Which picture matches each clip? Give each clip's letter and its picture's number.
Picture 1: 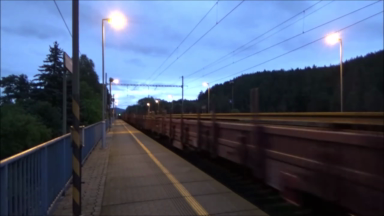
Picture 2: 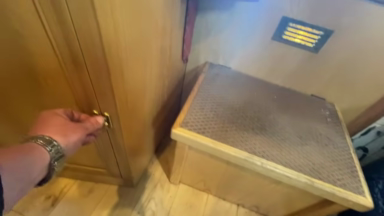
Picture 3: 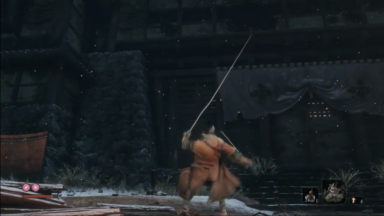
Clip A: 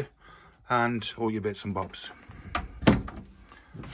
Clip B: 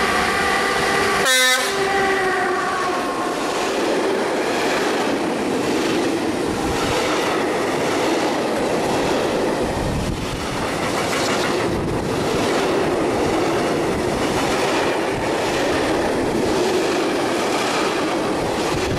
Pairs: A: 2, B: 1